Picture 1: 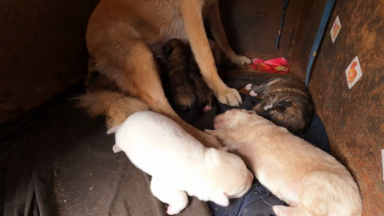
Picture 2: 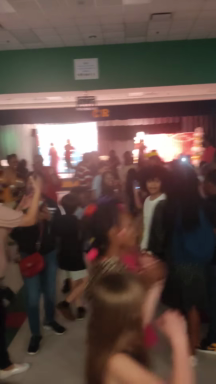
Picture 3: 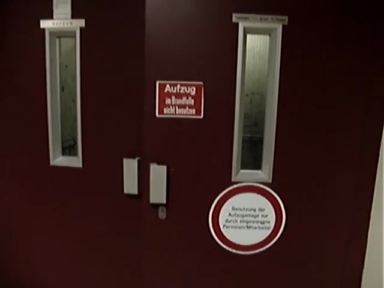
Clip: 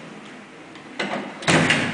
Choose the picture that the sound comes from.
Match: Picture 3